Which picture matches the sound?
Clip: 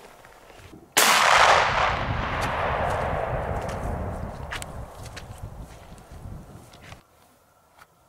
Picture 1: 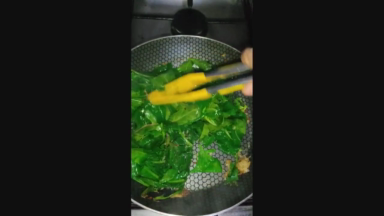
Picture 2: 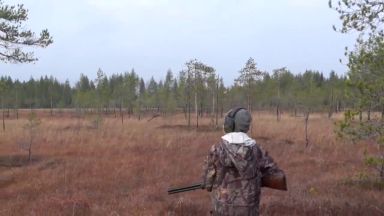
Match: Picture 2